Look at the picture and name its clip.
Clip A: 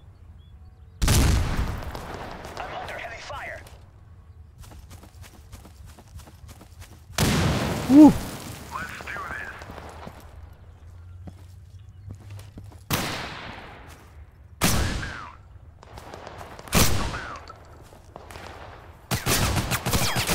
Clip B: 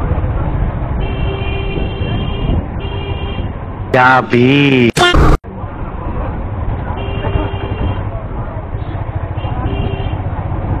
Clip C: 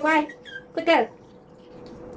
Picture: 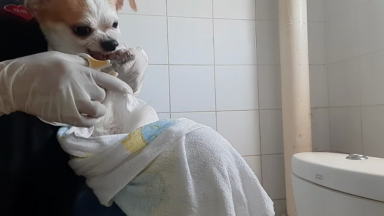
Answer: C